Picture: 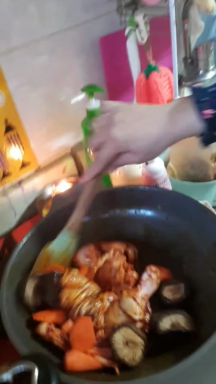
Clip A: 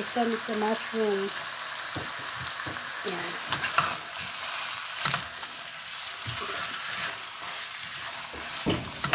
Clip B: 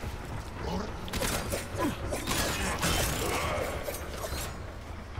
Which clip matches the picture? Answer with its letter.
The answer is A